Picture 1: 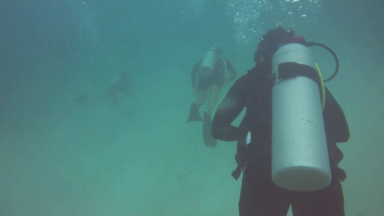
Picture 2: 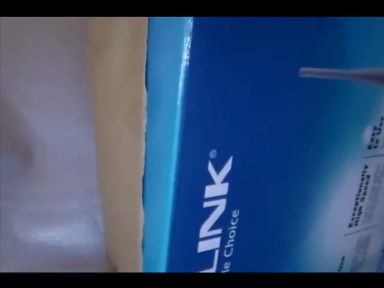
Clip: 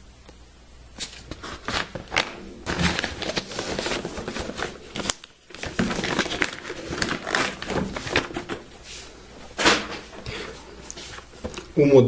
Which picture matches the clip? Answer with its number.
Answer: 2